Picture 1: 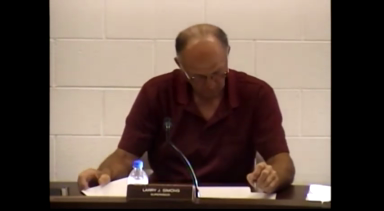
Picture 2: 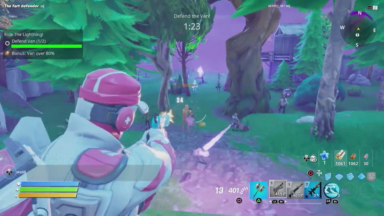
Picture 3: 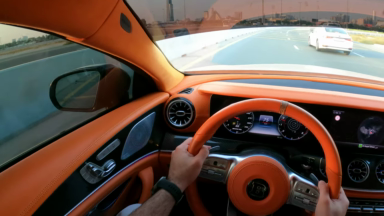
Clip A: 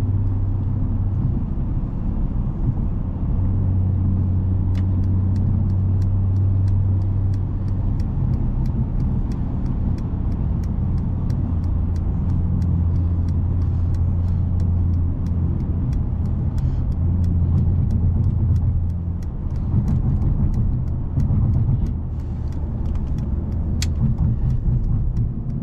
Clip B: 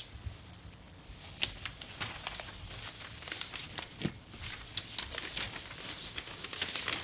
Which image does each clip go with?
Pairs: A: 3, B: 1